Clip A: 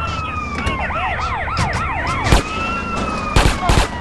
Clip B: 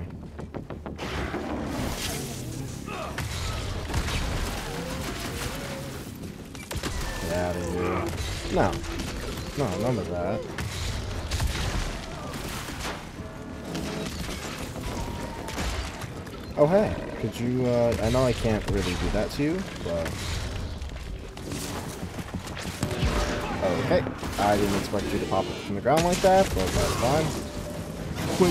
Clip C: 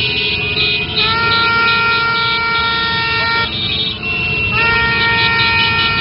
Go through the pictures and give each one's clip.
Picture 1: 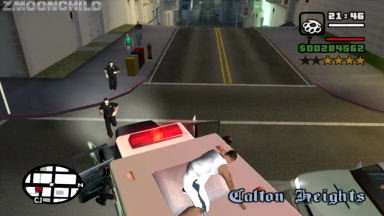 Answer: A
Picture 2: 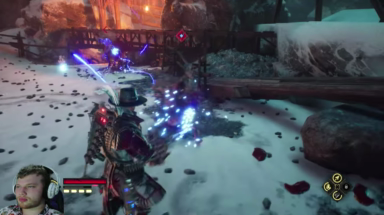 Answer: B